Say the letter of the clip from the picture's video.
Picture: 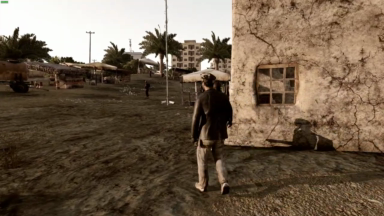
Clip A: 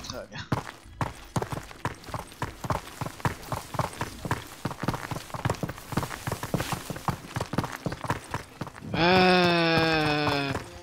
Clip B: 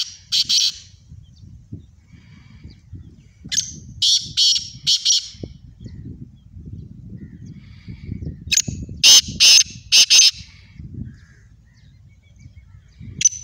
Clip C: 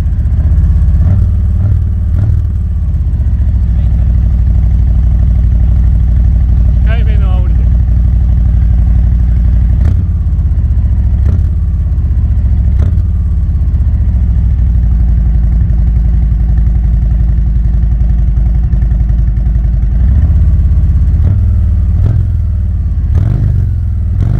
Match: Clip A